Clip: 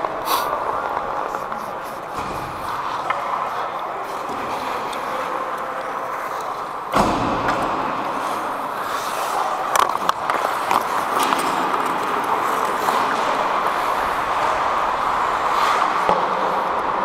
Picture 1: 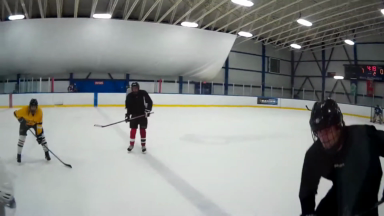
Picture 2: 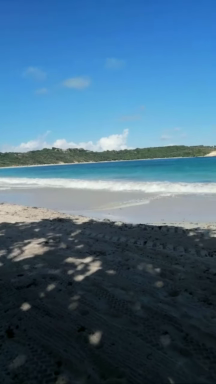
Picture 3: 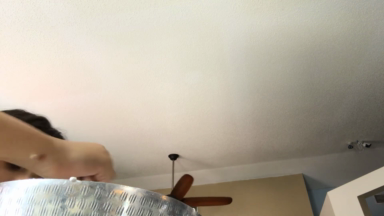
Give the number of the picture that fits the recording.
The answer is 1